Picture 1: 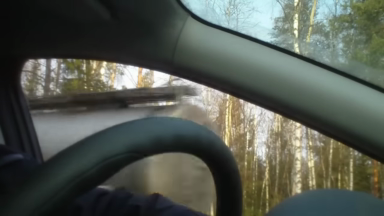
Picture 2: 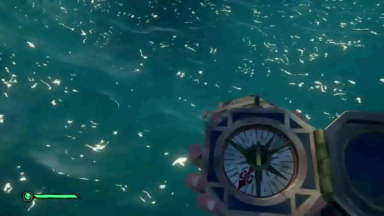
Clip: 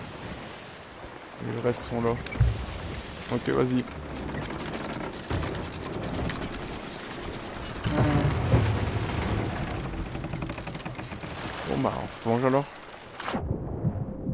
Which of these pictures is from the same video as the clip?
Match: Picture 2